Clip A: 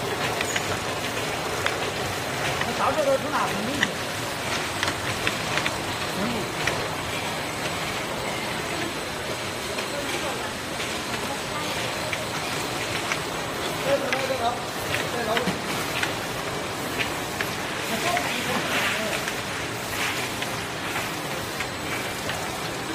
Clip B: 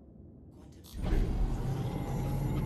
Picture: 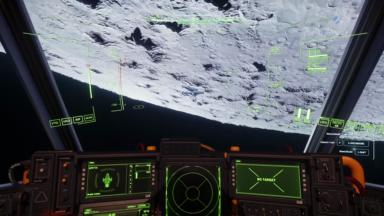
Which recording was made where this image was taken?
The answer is B